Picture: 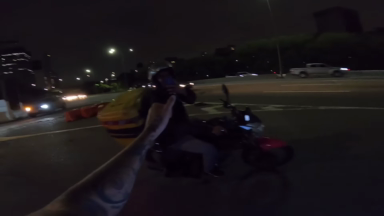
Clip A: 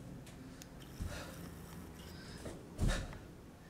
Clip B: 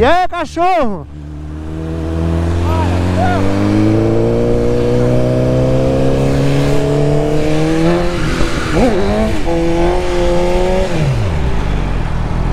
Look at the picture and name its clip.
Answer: B